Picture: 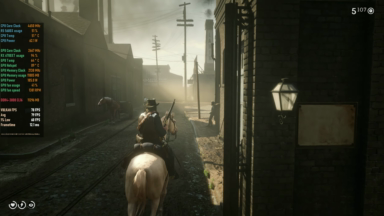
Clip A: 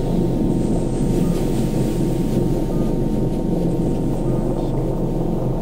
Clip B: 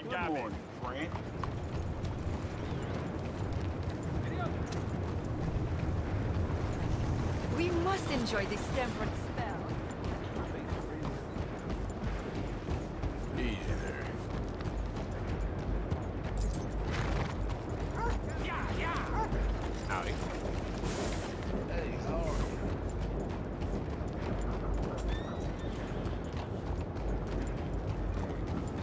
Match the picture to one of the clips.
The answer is B